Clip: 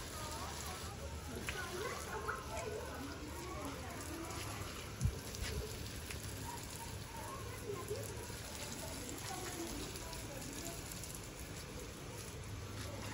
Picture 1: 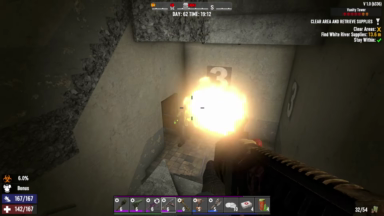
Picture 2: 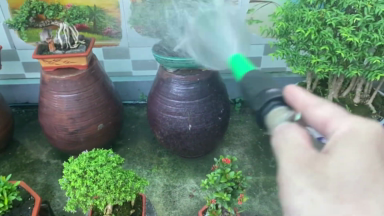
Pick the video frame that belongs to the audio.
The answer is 2